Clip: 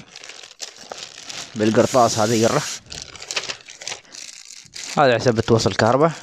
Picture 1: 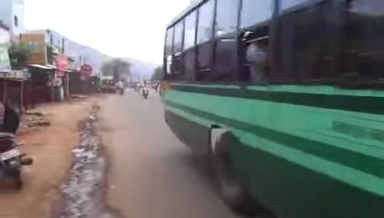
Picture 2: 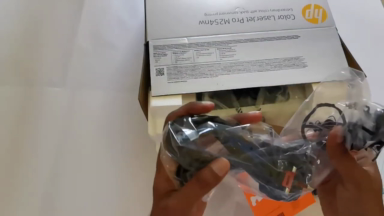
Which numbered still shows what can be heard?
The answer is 2